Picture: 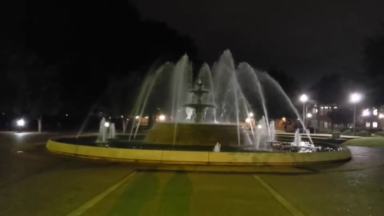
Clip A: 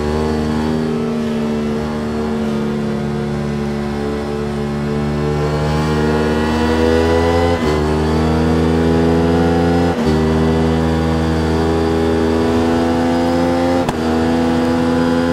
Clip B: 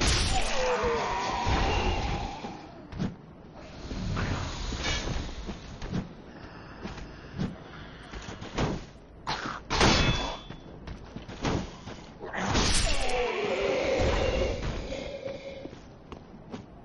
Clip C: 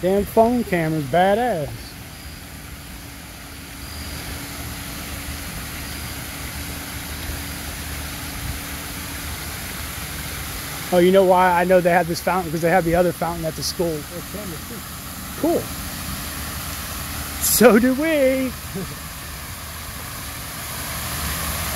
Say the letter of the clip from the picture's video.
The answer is C